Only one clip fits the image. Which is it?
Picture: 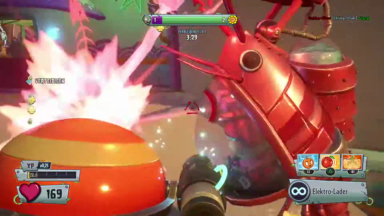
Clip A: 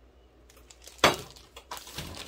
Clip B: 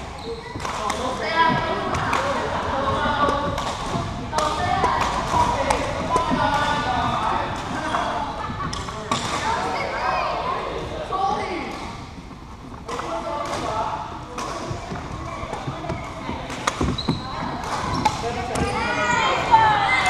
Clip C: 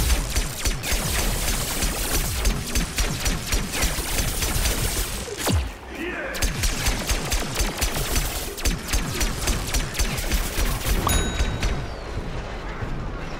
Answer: C